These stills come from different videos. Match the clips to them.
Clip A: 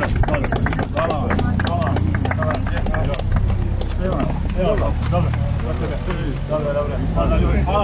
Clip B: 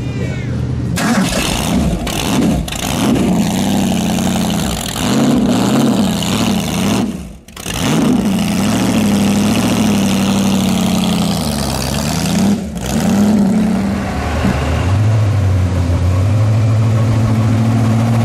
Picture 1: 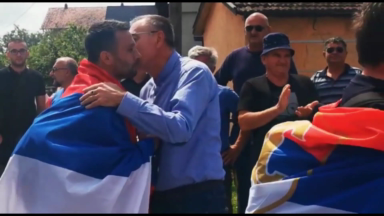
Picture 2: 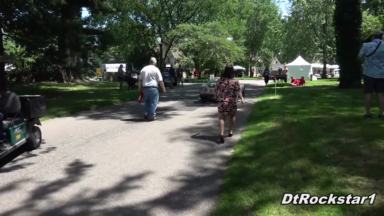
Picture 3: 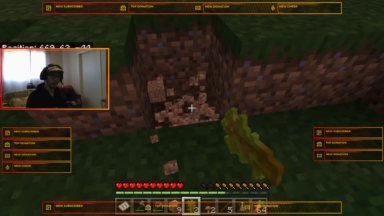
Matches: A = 1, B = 2